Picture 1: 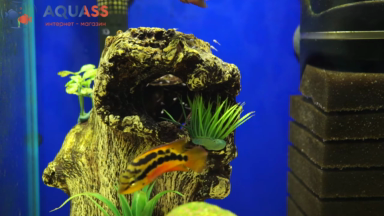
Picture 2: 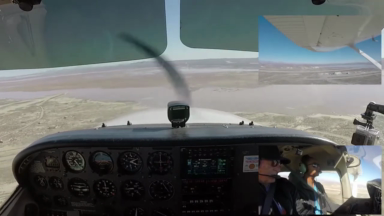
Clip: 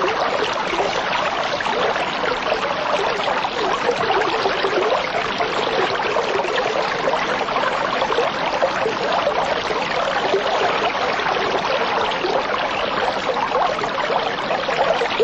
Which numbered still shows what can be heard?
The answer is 1